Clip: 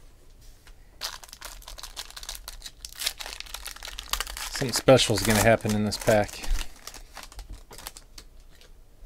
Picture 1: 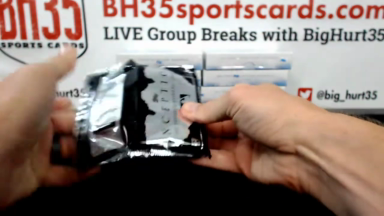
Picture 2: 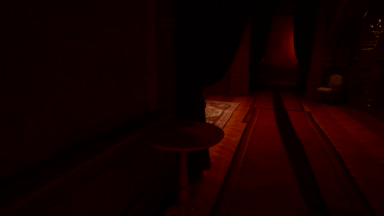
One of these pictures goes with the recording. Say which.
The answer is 1